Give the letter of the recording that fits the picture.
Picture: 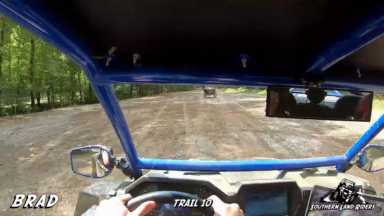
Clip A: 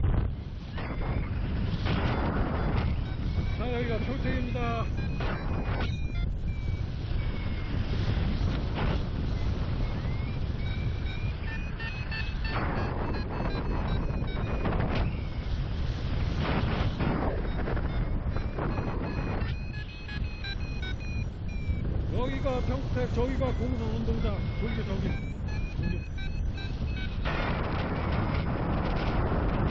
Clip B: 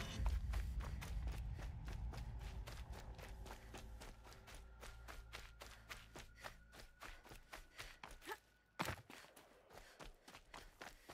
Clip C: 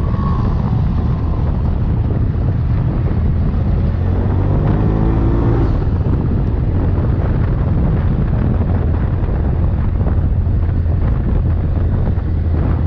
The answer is C